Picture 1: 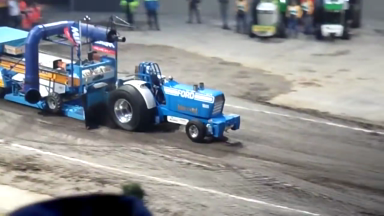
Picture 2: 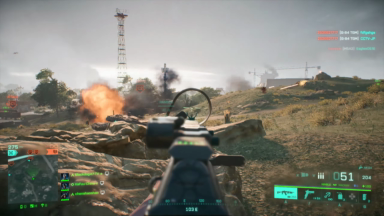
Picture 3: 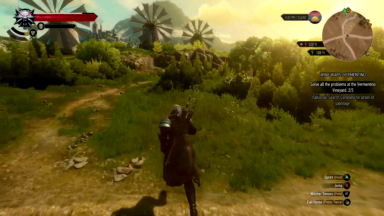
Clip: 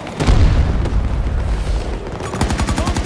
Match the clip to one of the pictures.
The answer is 2